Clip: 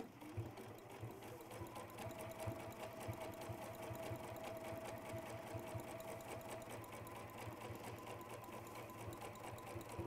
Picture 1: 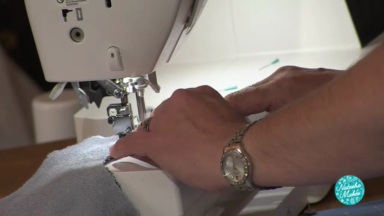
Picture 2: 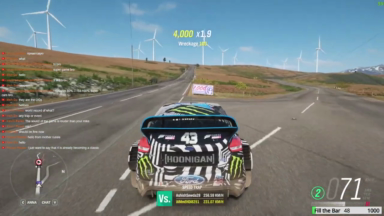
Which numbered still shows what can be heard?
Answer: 1